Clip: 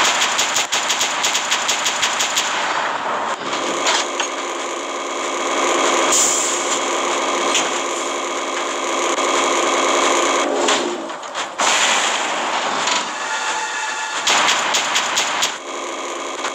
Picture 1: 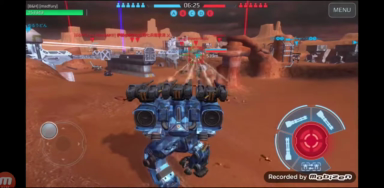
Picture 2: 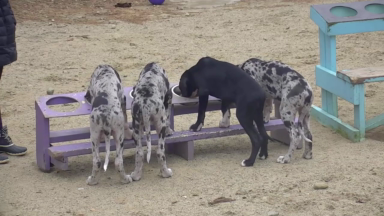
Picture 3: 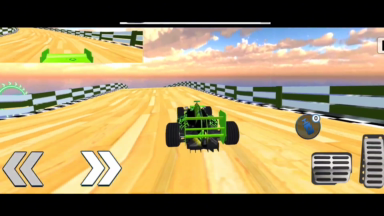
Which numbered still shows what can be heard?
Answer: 1